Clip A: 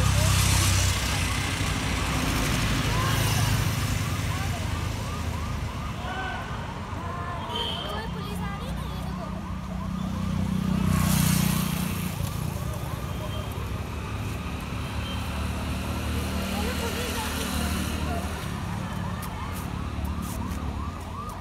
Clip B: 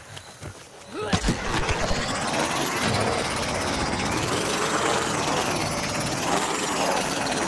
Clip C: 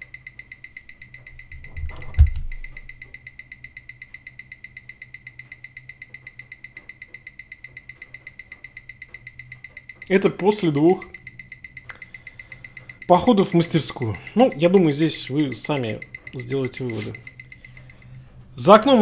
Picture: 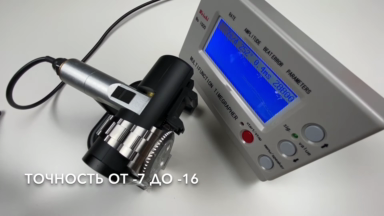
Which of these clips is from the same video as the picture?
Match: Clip C